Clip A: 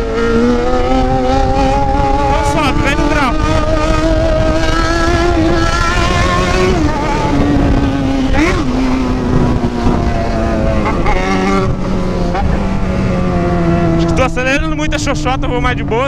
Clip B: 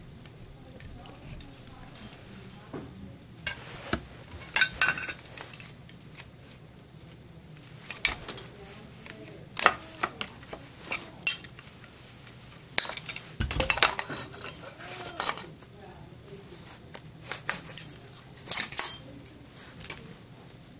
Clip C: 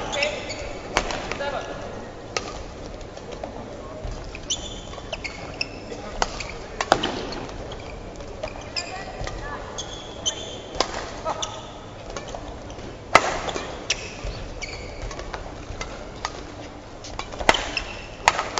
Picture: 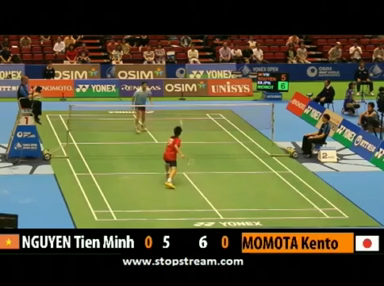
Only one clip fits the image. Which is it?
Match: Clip C